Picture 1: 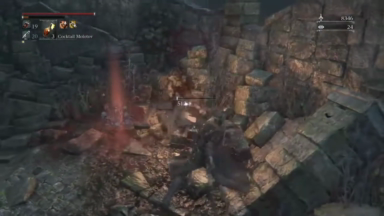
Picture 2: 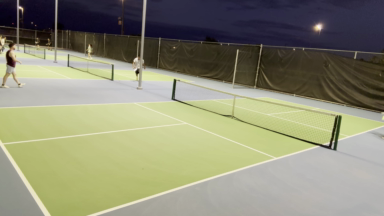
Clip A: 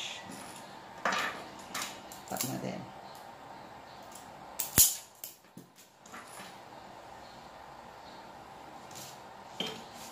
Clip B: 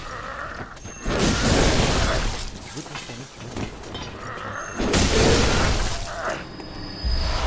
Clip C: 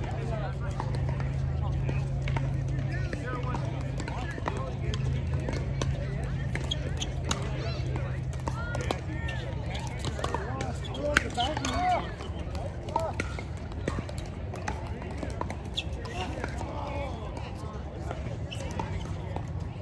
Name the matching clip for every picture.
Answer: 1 B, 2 C